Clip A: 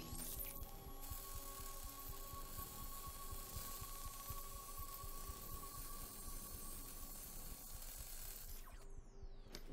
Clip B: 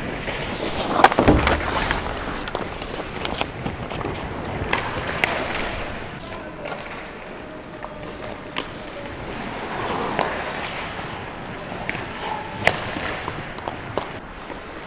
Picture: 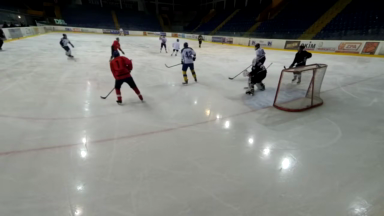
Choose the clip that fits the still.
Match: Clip B